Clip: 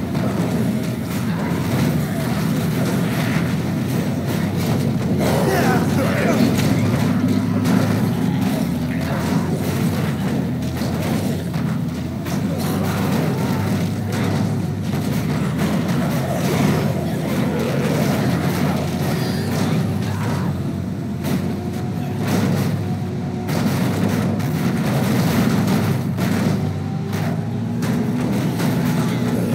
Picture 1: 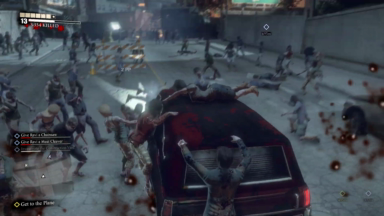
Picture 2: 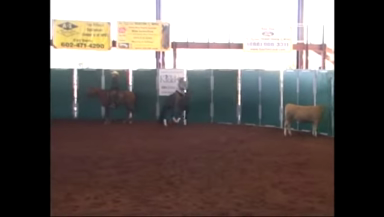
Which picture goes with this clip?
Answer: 1